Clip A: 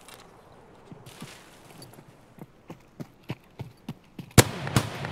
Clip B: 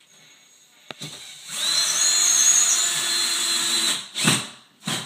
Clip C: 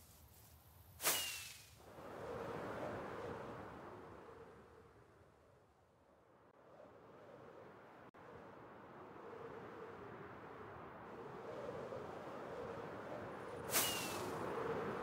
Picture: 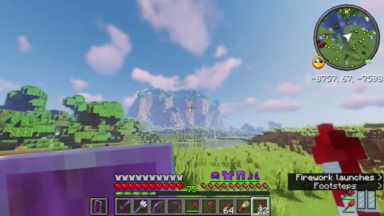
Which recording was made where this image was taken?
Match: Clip C